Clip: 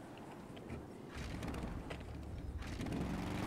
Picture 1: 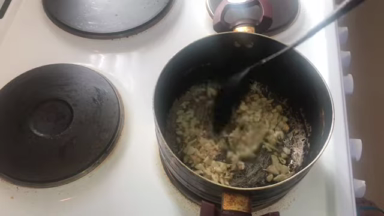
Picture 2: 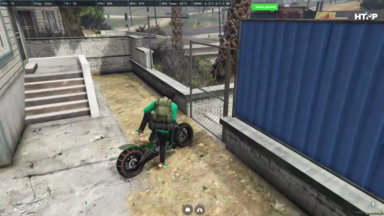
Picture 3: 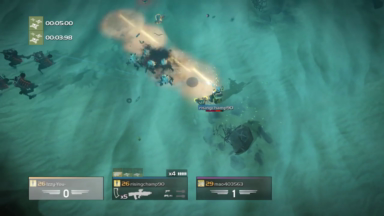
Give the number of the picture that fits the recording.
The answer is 2